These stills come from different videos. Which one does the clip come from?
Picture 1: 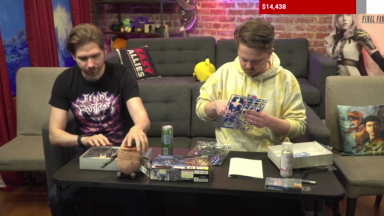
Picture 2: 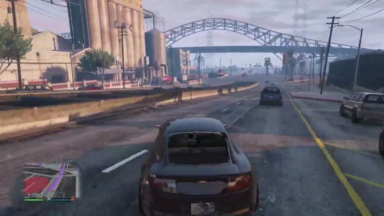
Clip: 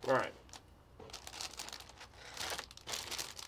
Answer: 1